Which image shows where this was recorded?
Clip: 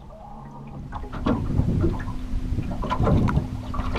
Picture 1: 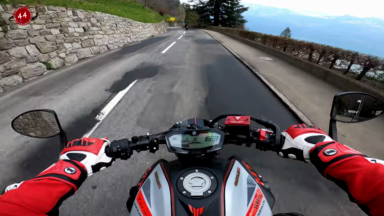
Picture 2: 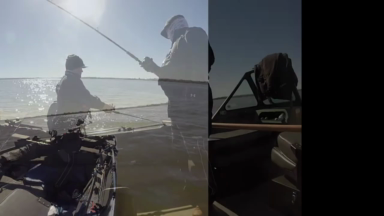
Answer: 2